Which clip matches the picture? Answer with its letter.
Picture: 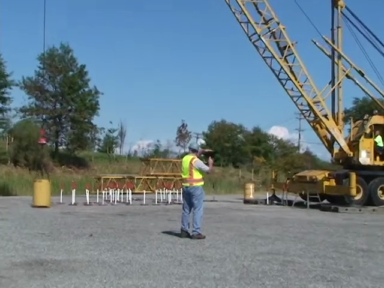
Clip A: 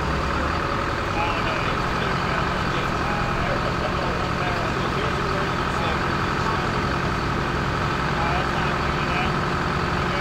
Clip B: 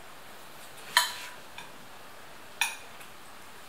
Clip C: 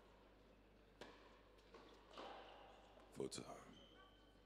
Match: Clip A